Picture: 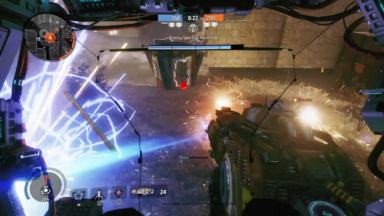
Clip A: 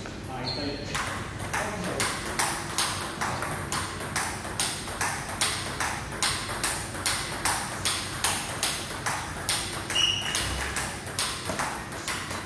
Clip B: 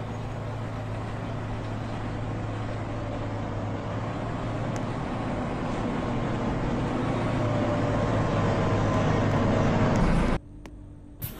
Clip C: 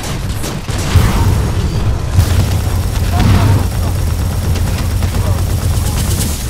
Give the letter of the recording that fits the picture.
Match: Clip C